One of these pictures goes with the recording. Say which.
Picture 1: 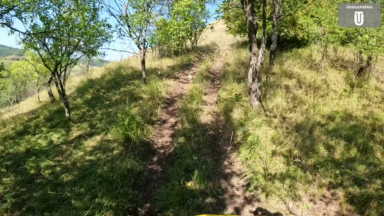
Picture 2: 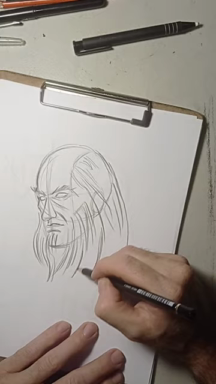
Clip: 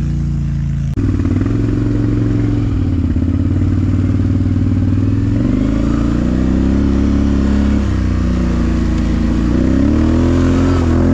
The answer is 1